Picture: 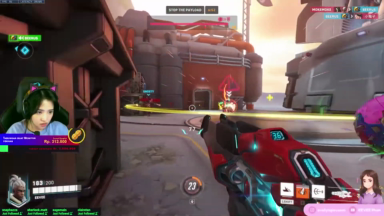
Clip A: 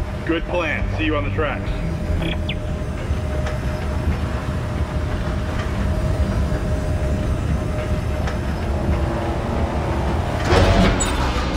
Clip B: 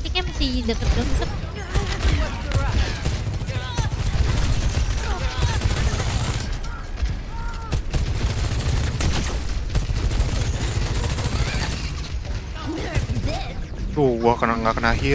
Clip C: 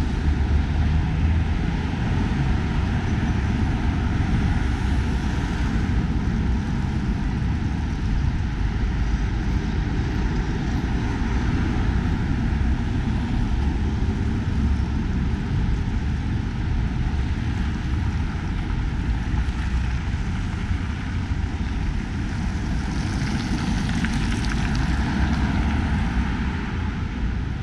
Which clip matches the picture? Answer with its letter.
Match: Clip B